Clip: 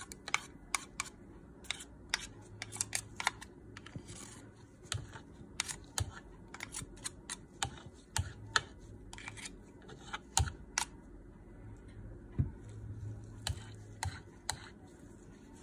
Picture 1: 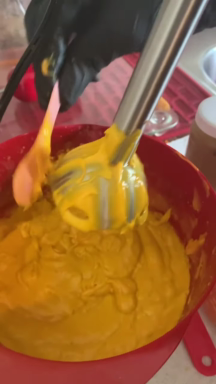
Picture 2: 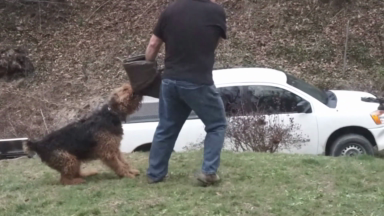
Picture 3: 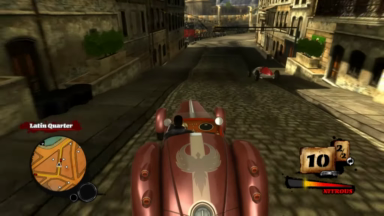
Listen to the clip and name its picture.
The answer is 1